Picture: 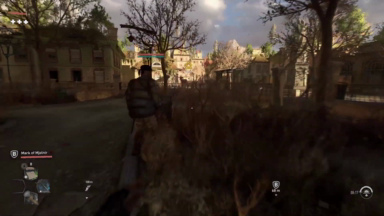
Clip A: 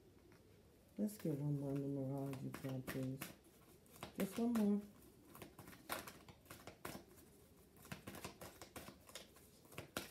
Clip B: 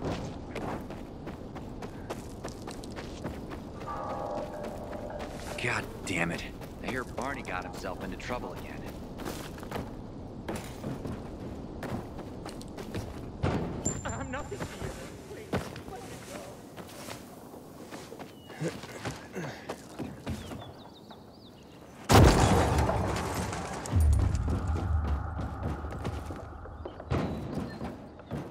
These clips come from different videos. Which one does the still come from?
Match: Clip B